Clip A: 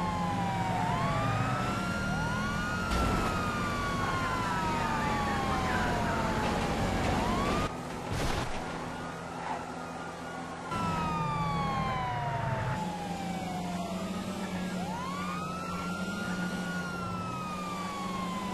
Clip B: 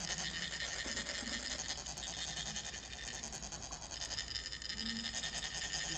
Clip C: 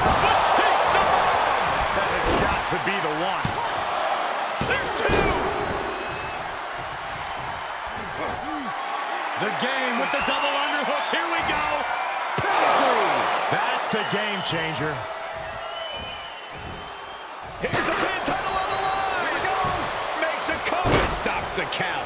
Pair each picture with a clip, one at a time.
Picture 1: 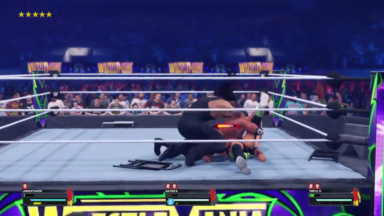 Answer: C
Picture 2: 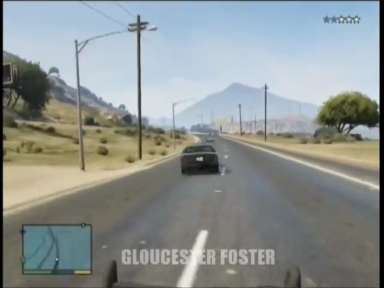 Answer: A